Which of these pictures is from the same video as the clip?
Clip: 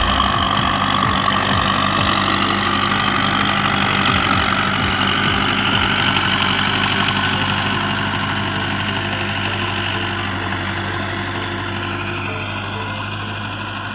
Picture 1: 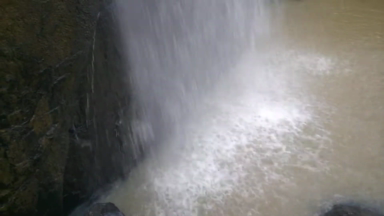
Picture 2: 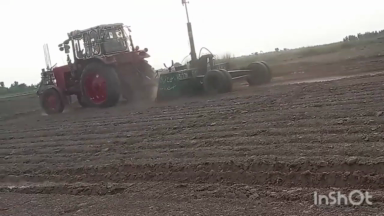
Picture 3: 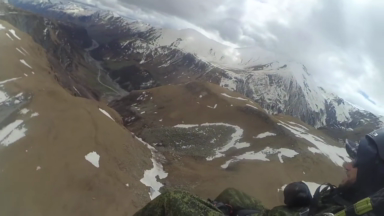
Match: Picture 2